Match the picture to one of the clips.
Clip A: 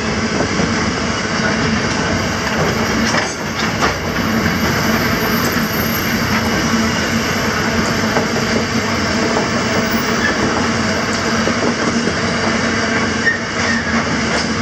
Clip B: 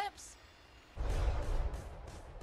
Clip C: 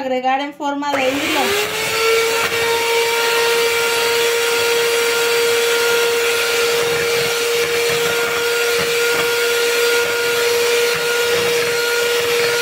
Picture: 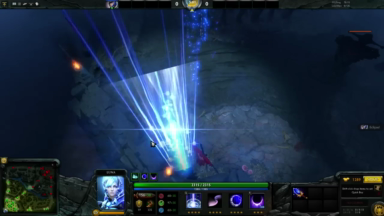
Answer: B